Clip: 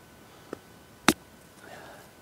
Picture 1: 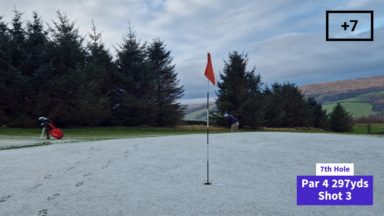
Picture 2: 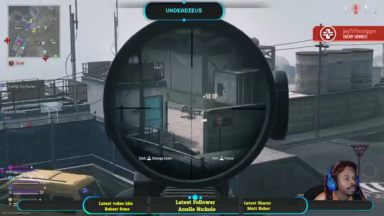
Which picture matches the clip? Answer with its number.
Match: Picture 1